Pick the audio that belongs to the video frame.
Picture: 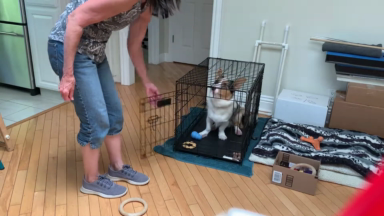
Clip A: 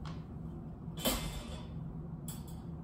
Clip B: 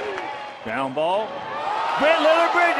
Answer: A